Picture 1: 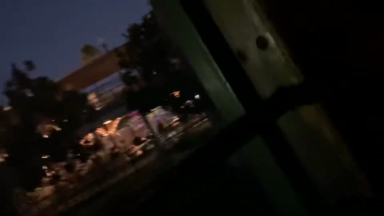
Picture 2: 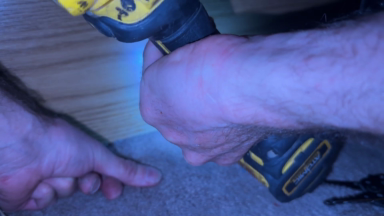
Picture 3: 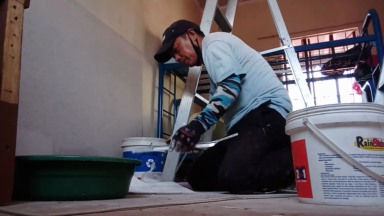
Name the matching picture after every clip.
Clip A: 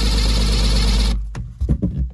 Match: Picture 2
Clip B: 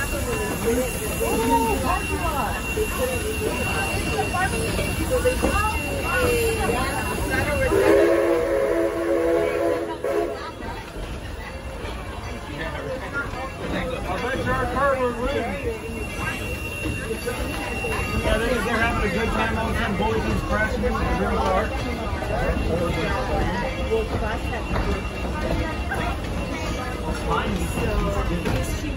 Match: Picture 1